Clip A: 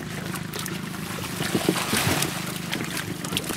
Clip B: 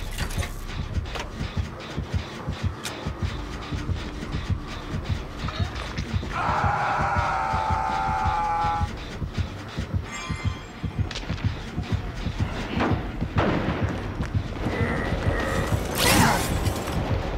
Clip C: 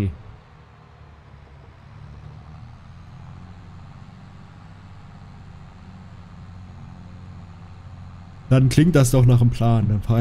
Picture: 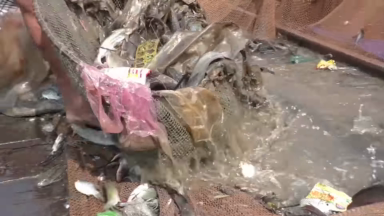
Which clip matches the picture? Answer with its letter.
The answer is A